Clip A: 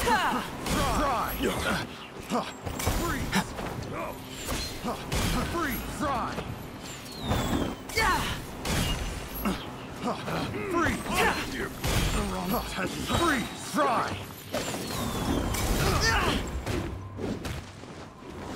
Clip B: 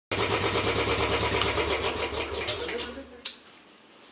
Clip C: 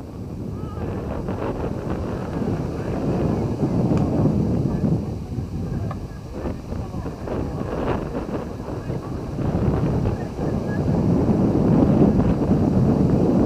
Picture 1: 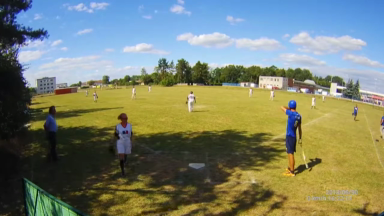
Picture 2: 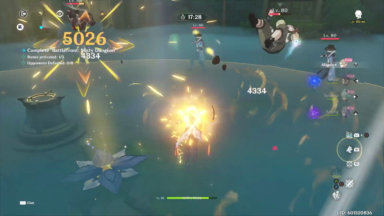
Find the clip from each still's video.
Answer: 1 C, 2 A